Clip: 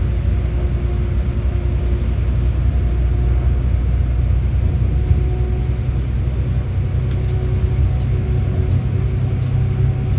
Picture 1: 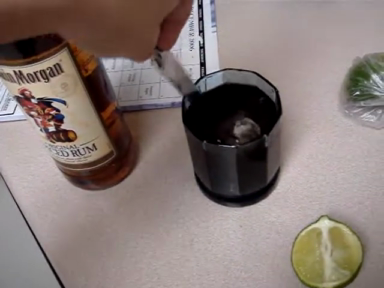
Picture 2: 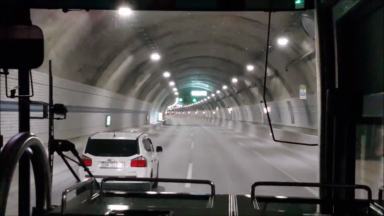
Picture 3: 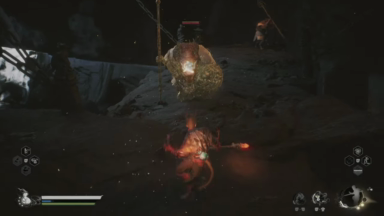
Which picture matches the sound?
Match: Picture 2